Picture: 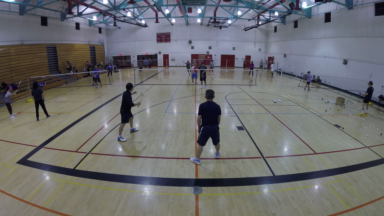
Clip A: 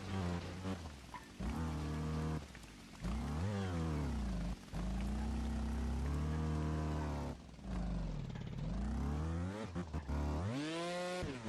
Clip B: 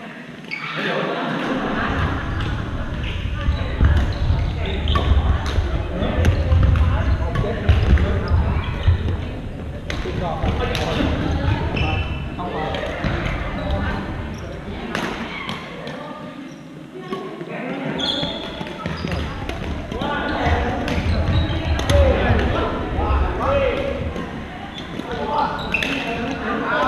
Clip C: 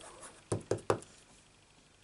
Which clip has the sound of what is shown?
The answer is B